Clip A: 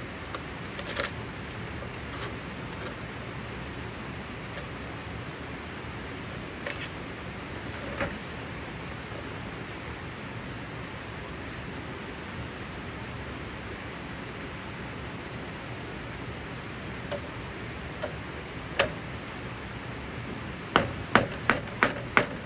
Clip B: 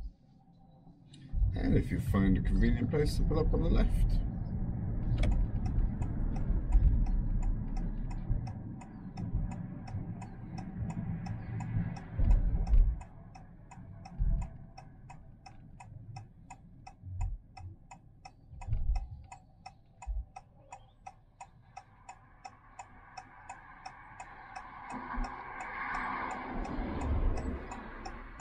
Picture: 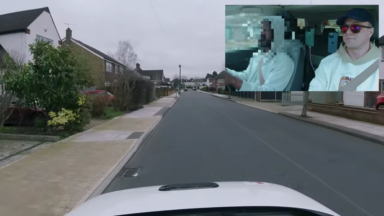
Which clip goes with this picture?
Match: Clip B